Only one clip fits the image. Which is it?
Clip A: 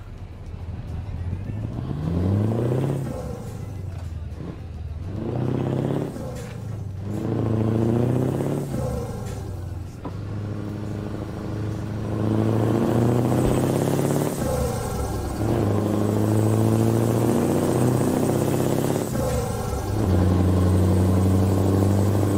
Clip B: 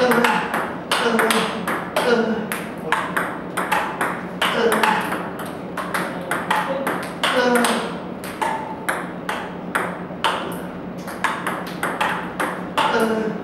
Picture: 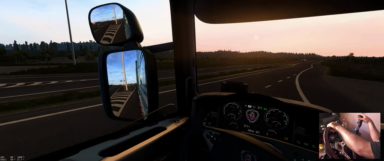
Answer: A